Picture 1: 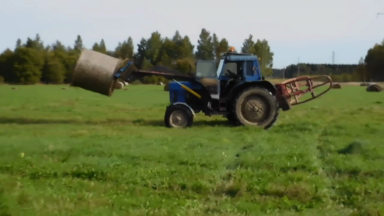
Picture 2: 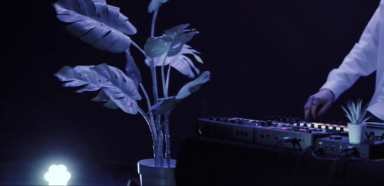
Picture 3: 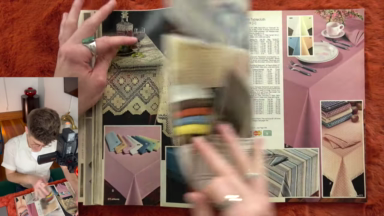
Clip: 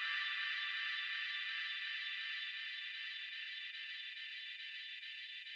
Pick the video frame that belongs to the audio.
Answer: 2